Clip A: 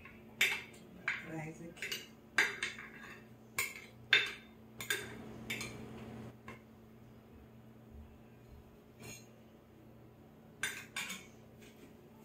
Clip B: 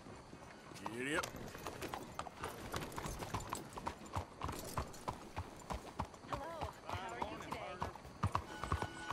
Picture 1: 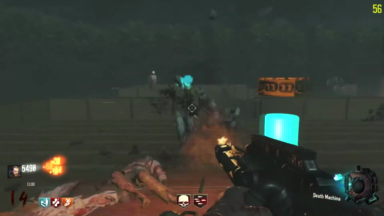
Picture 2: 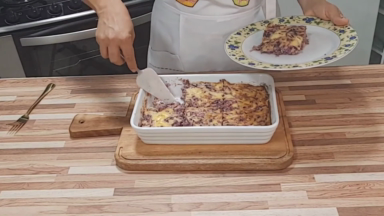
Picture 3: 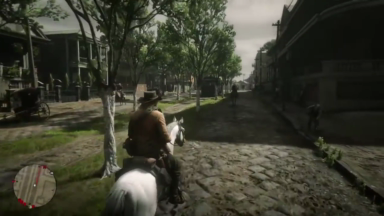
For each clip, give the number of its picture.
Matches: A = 2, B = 3